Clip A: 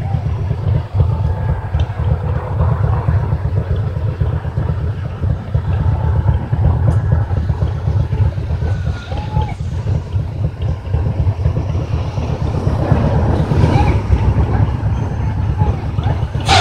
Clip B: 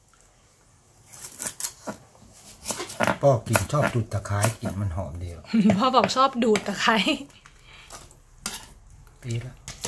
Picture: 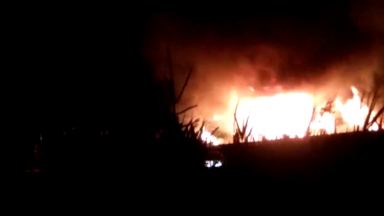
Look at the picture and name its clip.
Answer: A